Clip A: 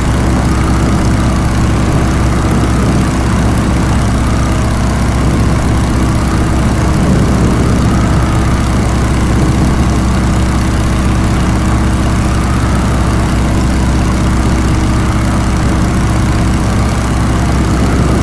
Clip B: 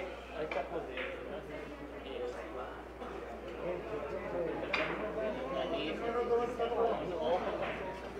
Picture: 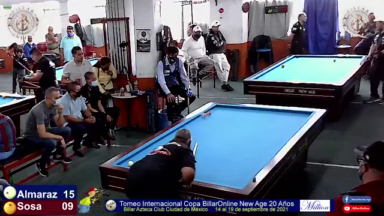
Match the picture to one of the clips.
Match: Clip B